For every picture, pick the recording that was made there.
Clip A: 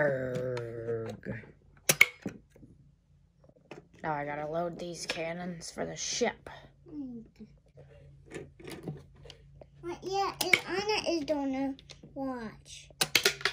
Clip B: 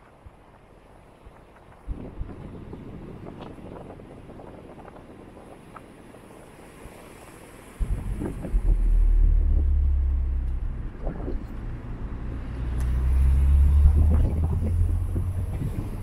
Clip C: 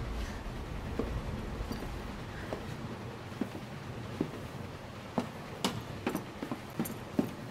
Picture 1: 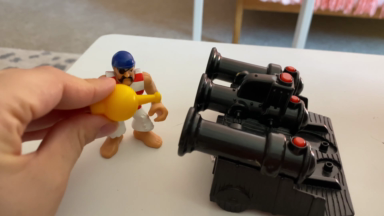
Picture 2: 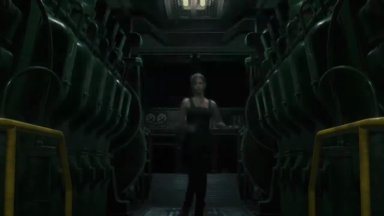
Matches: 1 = A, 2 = C